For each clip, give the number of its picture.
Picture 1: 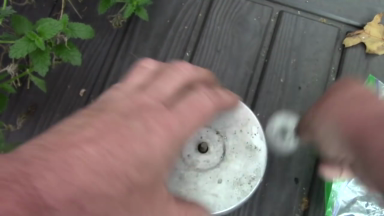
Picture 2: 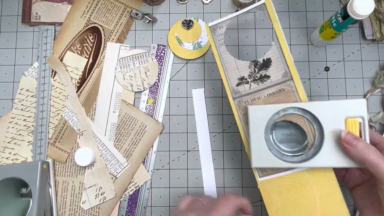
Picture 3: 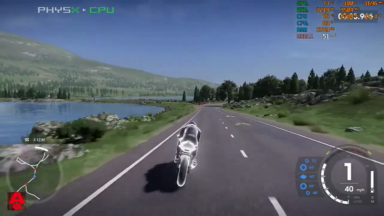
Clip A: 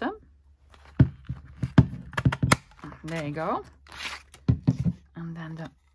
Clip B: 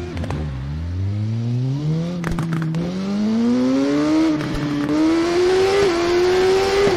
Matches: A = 2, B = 3